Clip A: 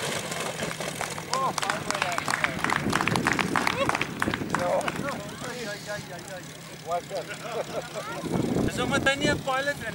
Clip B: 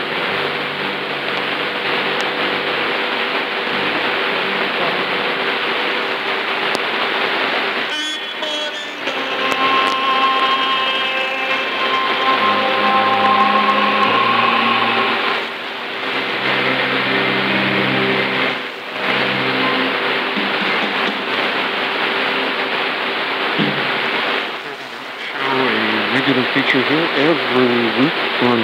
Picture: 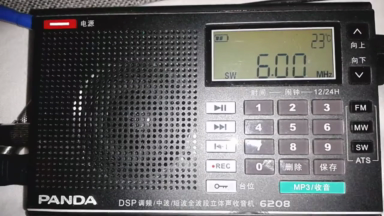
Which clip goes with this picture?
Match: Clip B